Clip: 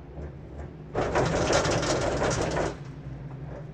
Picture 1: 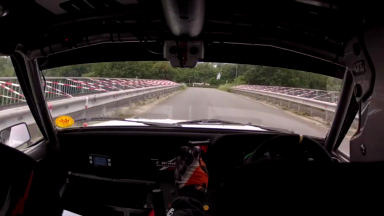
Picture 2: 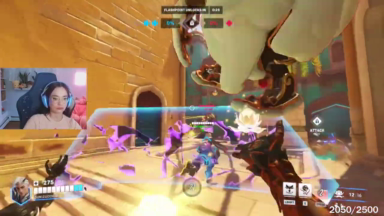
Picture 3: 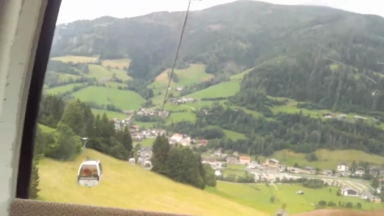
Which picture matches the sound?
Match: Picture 3